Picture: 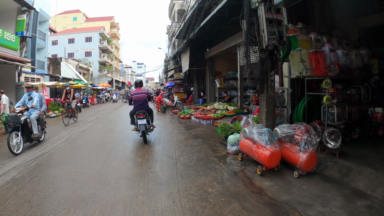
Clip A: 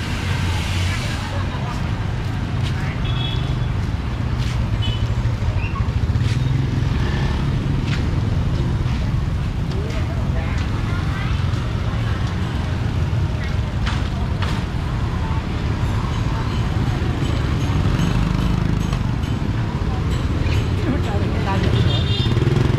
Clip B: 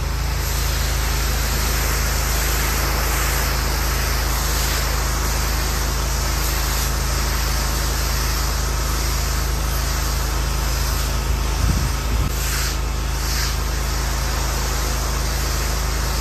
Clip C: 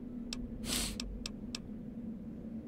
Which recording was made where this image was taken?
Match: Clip A